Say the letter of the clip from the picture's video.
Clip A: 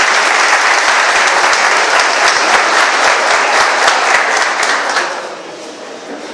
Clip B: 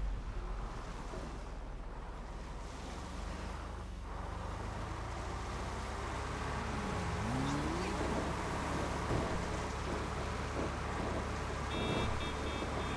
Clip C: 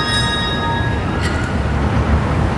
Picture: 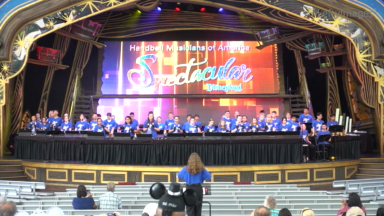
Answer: C